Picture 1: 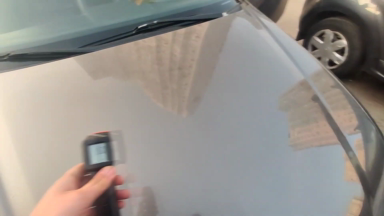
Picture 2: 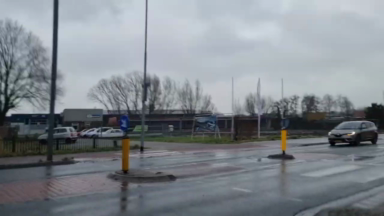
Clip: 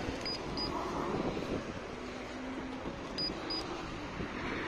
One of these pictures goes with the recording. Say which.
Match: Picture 1